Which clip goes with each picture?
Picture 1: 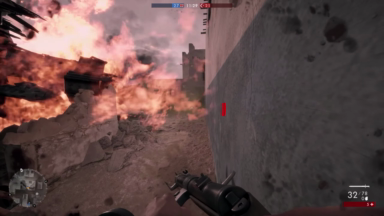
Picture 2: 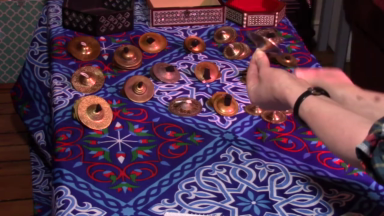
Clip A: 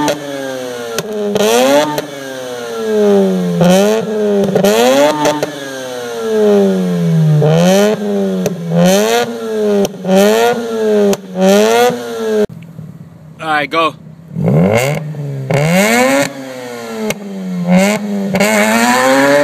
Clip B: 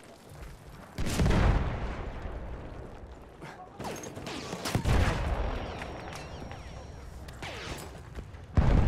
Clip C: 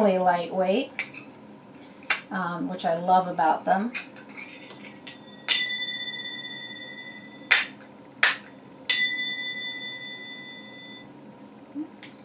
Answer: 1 B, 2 C